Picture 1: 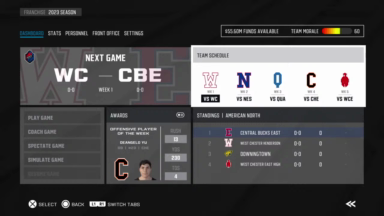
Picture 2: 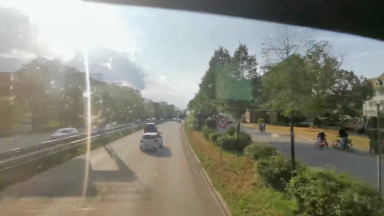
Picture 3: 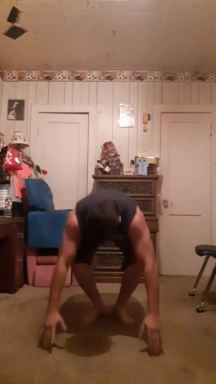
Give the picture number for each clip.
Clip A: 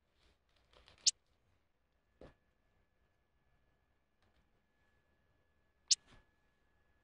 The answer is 1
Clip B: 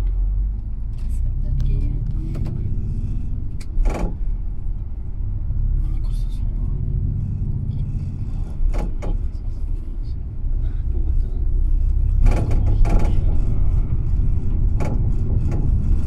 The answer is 2